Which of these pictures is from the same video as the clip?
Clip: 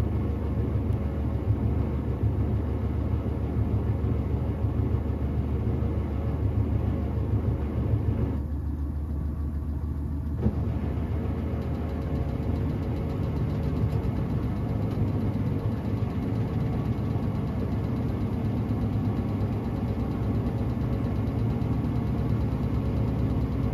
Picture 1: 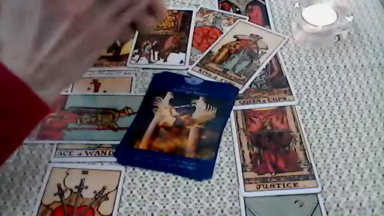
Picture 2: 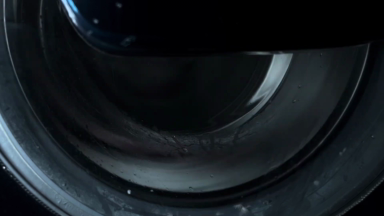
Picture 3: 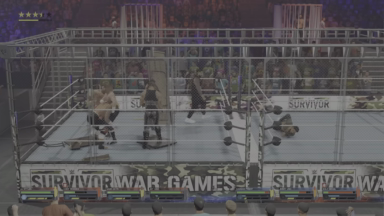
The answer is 2